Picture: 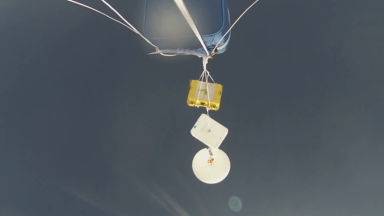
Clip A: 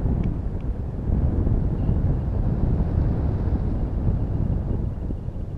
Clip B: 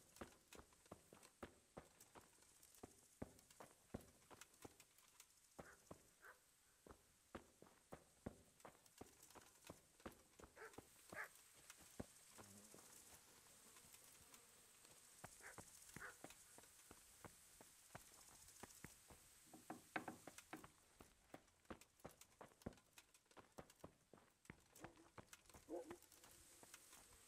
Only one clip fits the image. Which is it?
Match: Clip A